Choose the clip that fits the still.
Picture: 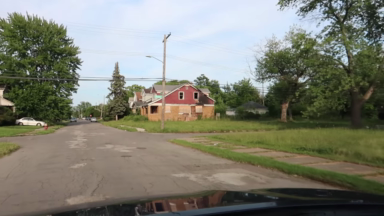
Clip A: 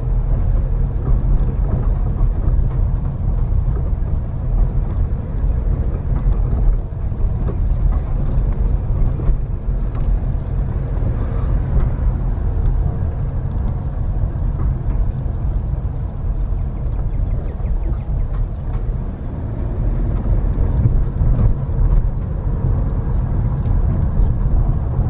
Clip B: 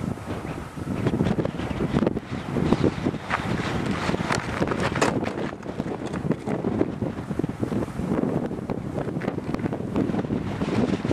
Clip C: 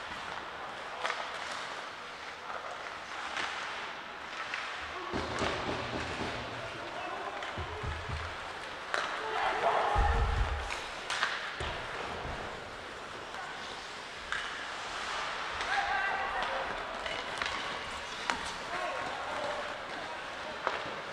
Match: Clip A